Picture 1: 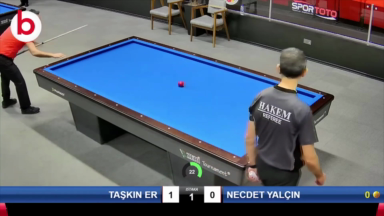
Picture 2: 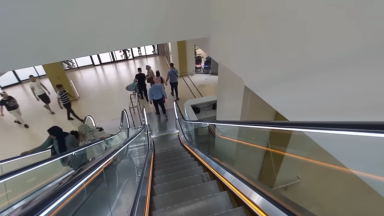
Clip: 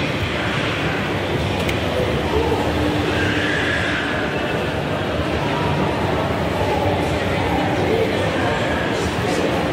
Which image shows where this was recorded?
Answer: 2